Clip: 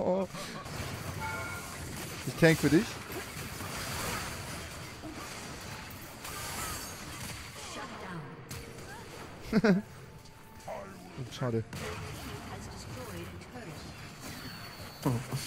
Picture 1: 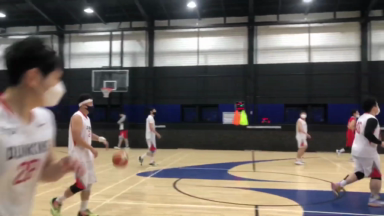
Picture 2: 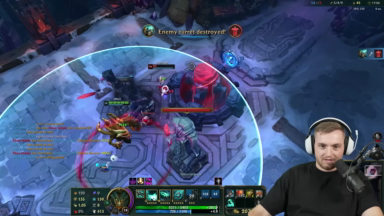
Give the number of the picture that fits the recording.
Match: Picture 2